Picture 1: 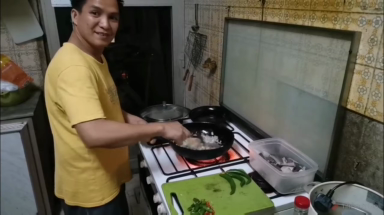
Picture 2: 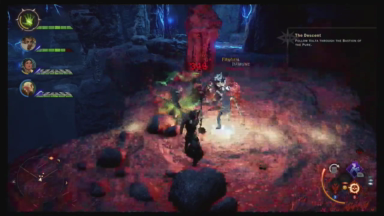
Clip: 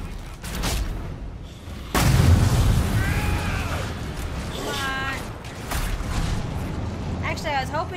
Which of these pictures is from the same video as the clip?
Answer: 2